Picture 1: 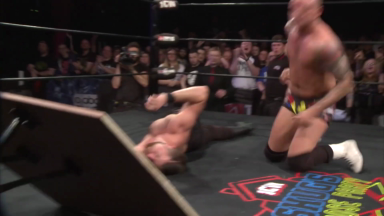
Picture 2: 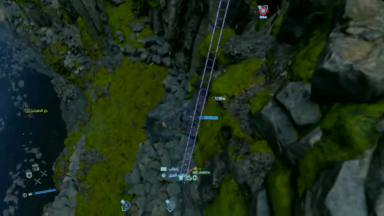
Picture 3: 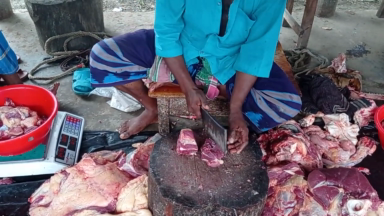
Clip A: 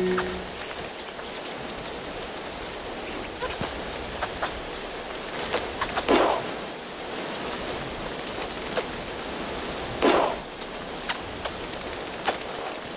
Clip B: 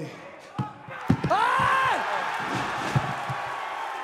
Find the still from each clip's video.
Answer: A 2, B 1